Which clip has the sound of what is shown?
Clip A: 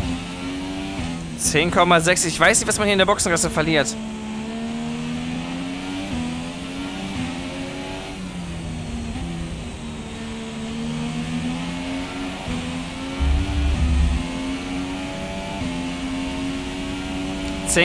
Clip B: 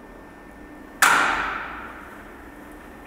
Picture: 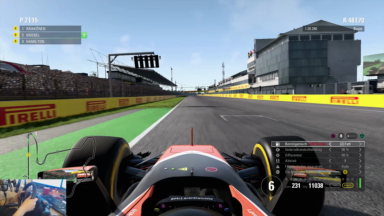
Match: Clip A